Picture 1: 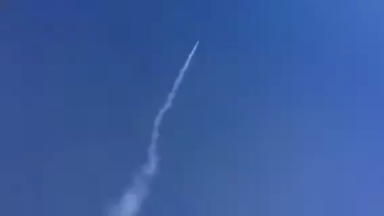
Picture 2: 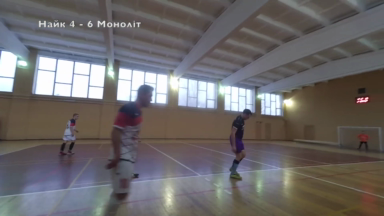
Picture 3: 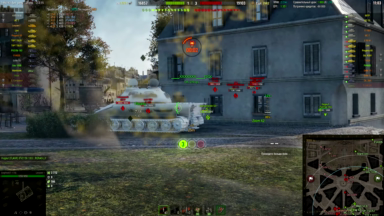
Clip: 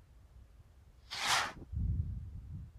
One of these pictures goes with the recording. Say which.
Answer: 1